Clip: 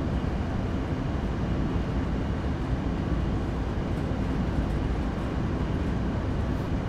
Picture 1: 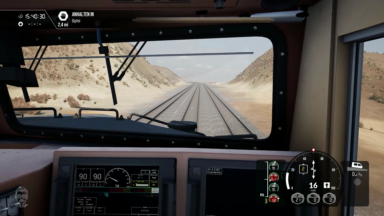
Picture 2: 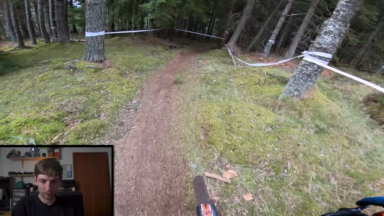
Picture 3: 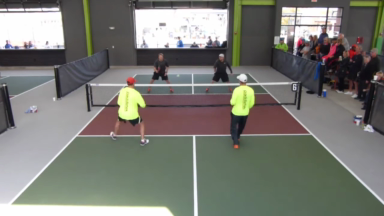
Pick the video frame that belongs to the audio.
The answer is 1